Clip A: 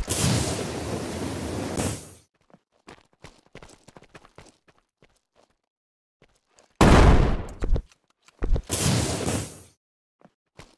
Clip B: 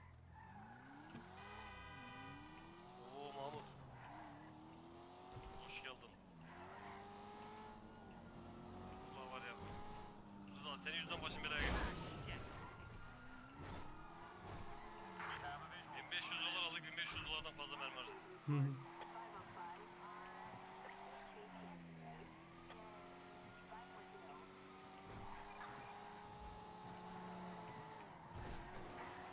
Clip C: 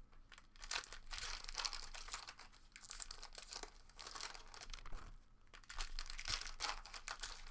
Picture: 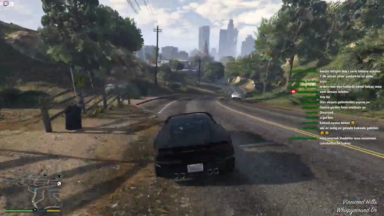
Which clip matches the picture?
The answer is B